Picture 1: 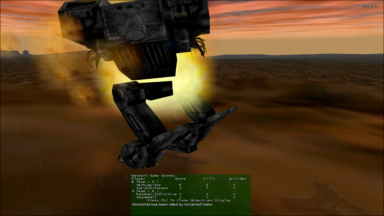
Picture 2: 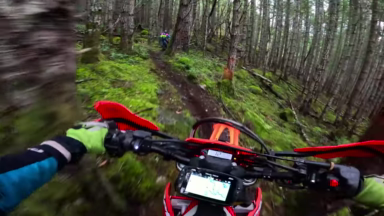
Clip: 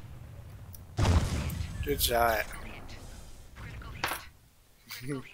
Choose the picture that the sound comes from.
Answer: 1